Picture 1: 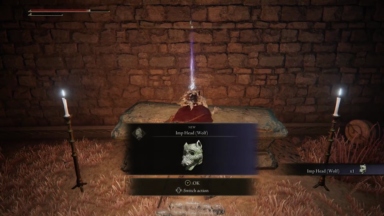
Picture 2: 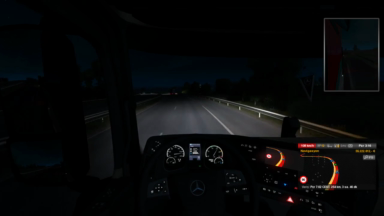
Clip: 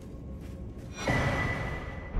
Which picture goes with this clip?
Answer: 1